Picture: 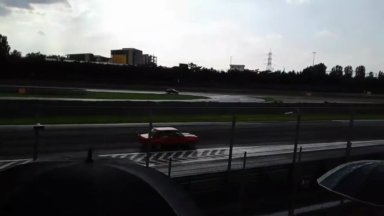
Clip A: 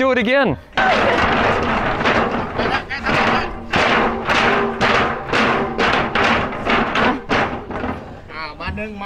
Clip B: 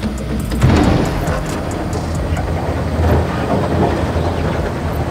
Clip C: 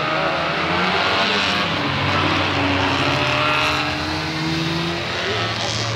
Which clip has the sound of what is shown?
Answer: C